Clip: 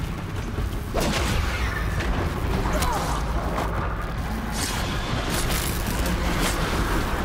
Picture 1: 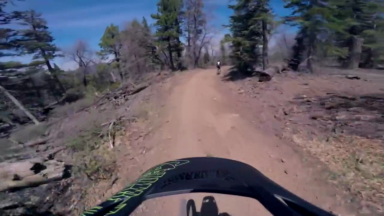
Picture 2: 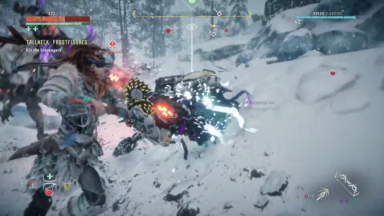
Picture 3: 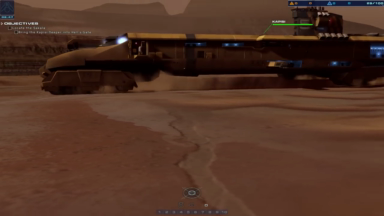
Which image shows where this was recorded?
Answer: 2